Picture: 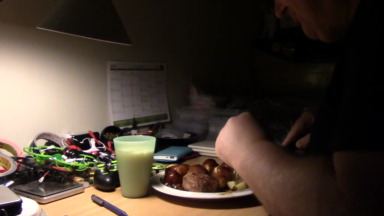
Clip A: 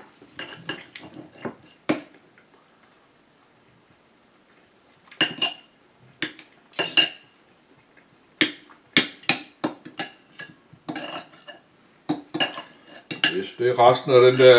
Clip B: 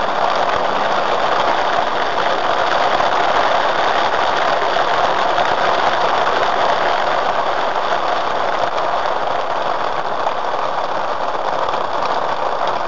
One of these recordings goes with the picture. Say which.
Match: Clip A